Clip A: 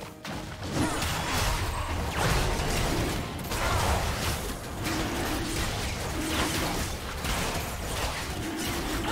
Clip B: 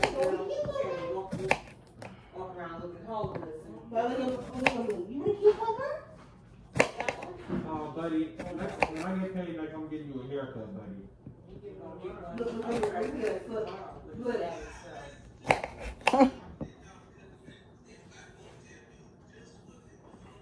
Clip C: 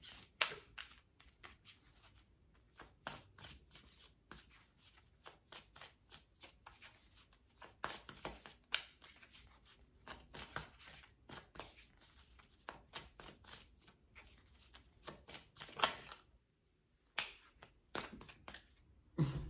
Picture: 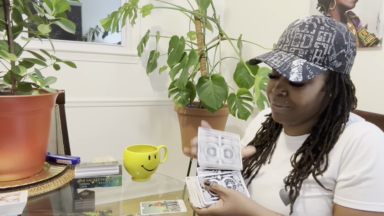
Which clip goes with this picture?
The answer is C